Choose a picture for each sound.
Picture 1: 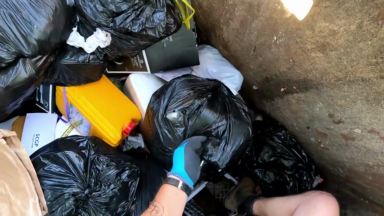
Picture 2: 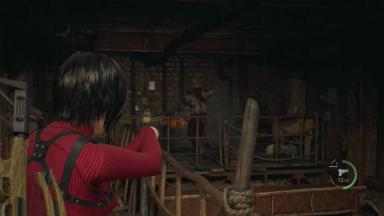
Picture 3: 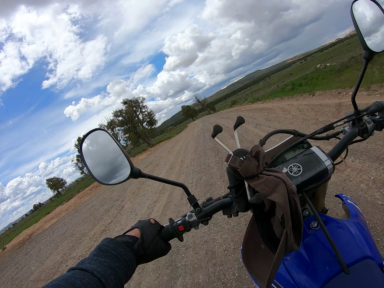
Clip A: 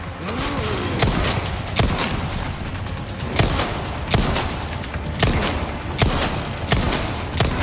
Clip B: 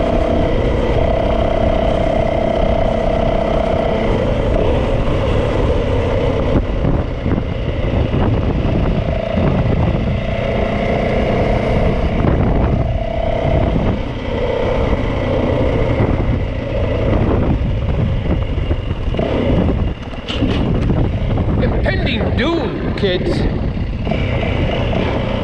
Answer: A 2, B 3